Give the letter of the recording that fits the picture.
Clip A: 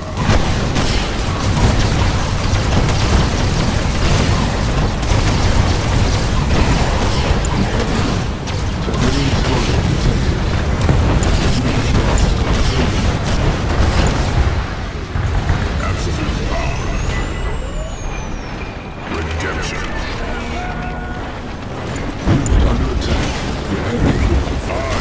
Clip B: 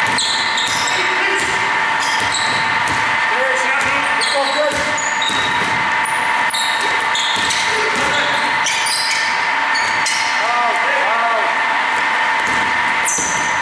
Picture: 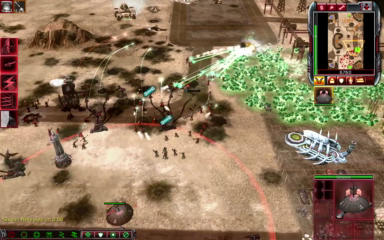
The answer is A